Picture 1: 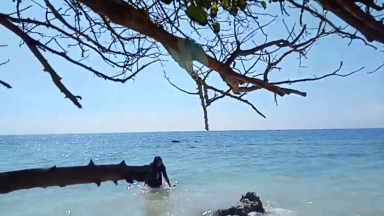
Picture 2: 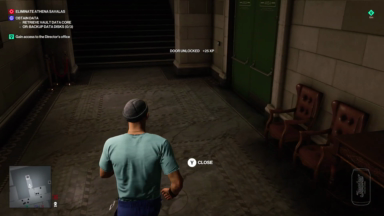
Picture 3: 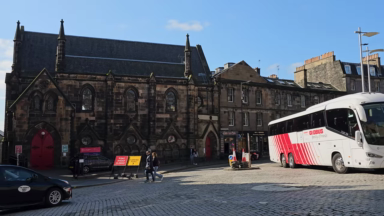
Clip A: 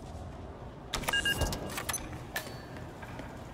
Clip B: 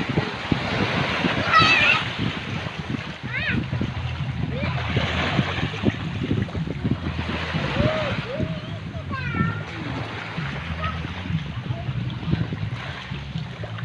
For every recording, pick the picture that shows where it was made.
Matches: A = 2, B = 1